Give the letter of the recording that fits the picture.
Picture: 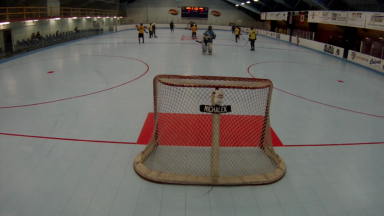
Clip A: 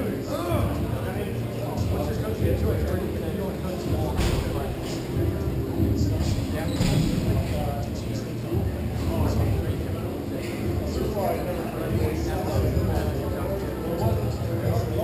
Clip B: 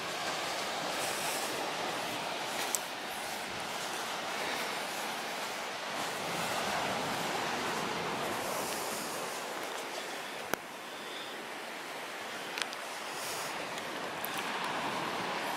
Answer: A